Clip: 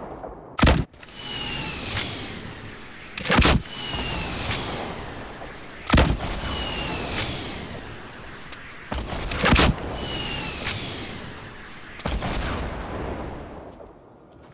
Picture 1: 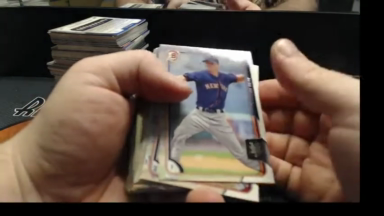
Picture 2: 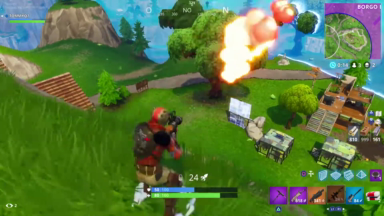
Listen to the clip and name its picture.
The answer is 2